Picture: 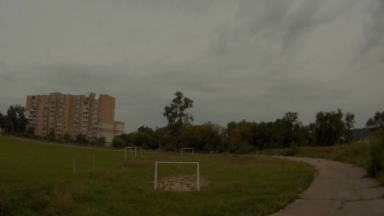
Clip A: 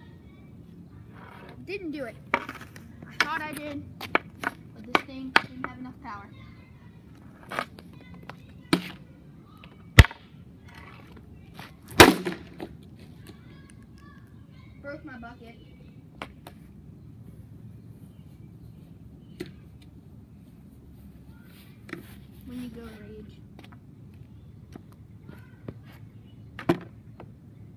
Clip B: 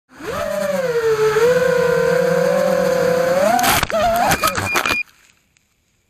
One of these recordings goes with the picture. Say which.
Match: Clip B